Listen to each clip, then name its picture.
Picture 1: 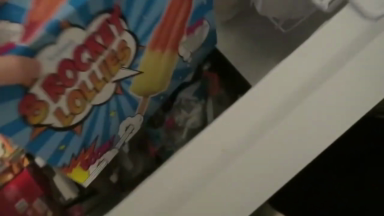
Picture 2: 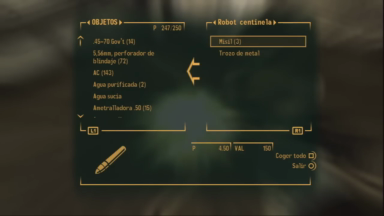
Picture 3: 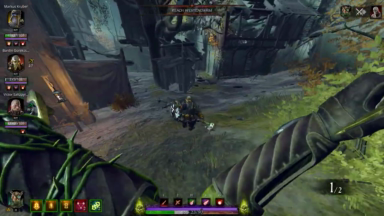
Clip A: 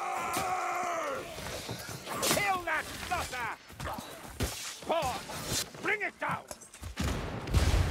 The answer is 3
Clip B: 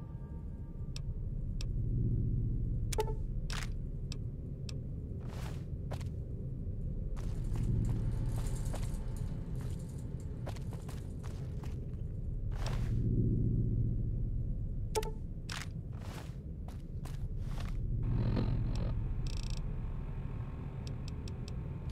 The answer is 2